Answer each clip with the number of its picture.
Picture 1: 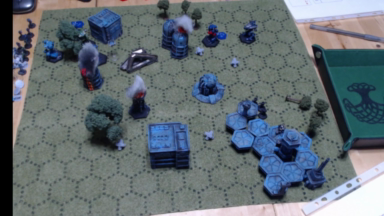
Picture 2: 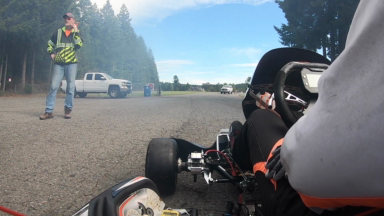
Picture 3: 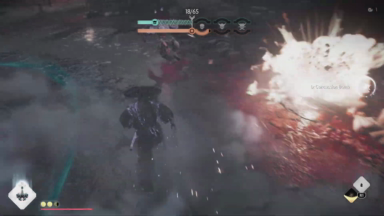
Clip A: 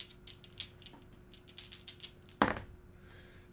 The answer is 1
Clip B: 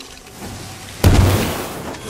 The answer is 3